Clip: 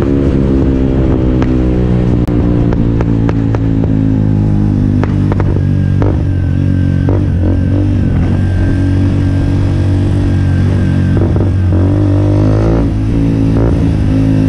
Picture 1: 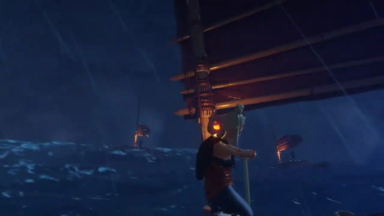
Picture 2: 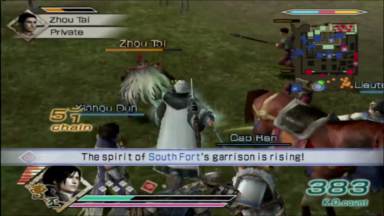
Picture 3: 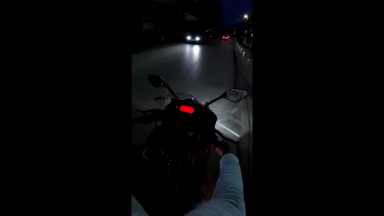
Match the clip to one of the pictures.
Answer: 3